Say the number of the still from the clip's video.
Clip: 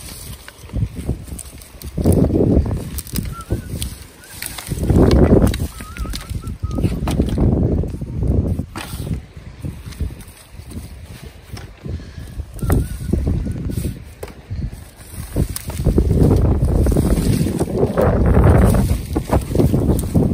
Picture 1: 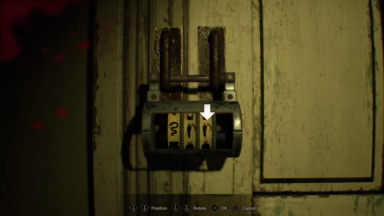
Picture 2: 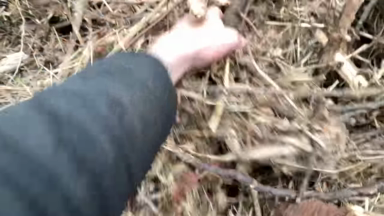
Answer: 2